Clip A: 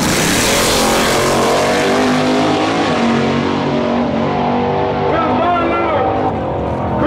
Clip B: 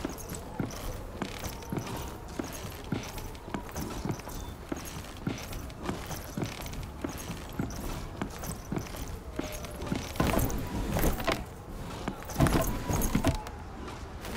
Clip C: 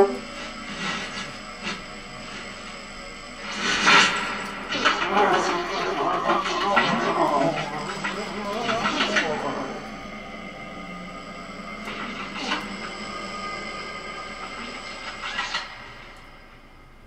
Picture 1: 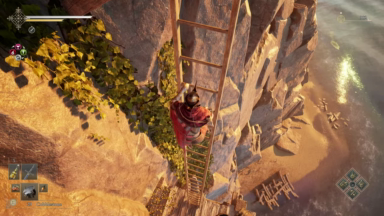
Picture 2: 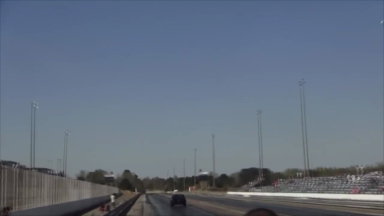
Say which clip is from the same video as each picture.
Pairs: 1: B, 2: A